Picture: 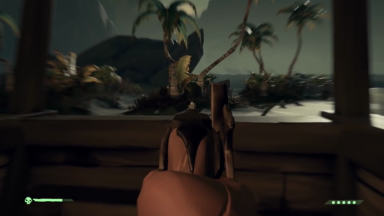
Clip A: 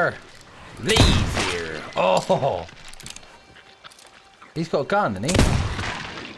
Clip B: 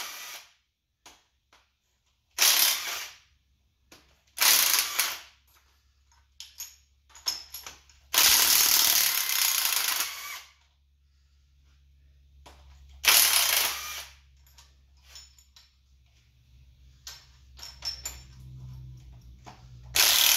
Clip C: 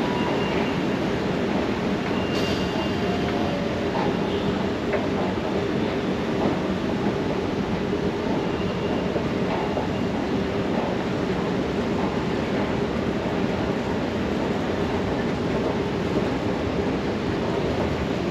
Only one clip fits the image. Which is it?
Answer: A